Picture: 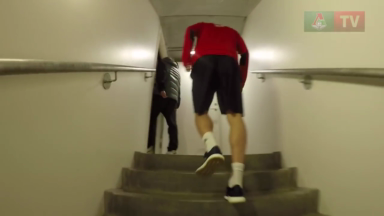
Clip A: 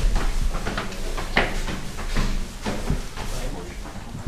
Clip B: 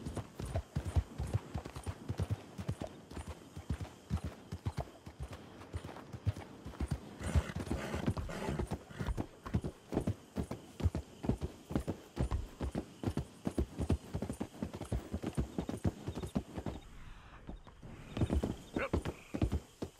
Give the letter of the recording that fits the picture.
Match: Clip A